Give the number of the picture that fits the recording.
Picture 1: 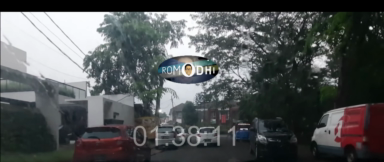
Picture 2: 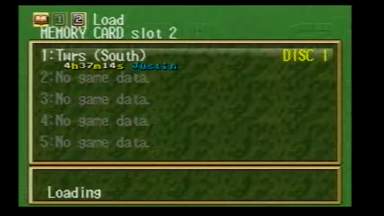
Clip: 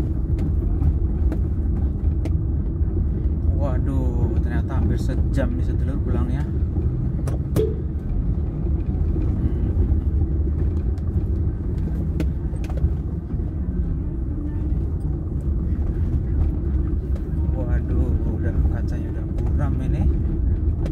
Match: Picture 1